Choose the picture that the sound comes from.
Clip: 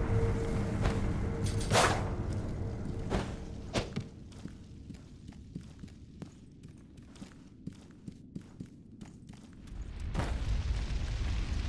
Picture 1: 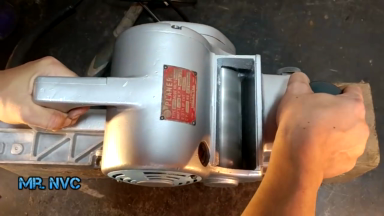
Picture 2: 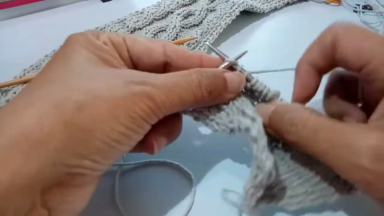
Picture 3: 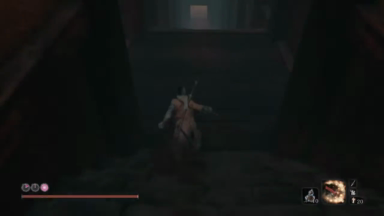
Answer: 3